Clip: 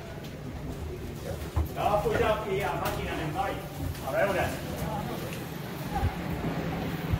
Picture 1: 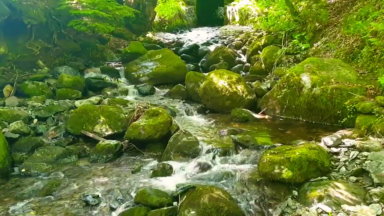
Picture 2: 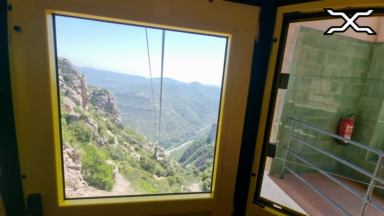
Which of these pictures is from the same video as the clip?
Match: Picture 2